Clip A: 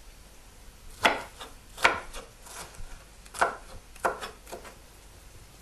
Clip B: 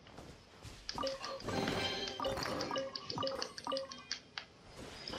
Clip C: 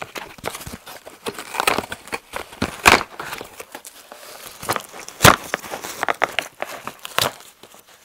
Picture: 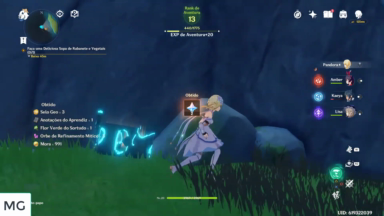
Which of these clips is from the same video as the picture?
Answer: B